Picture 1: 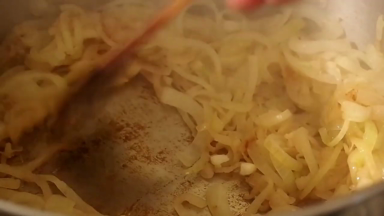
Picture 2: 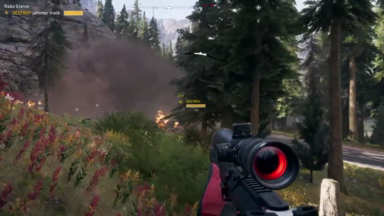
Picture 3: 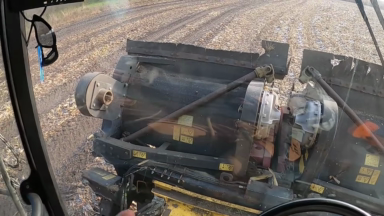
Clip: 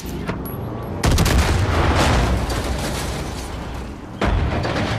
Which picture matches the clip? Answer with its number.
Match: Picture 2